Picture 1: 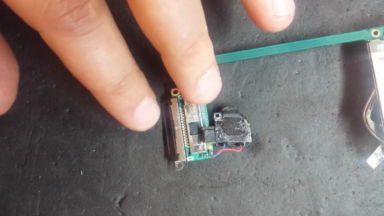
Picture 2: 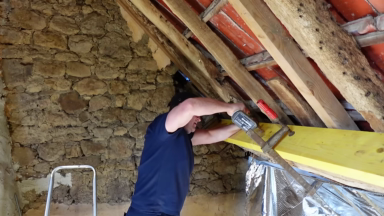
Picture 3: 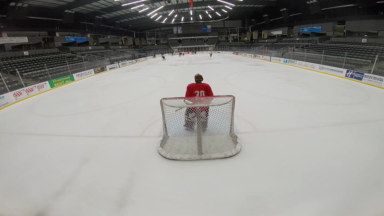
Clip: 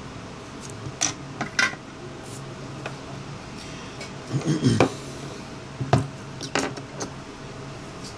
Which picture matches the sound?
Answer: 1